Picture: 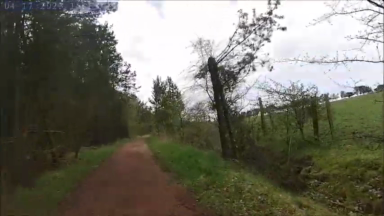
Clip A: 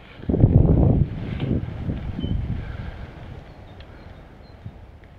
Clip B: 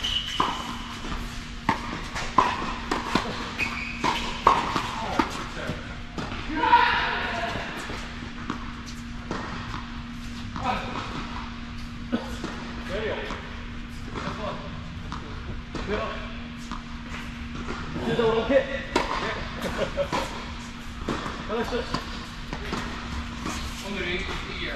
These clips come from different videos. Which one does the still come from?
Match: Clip A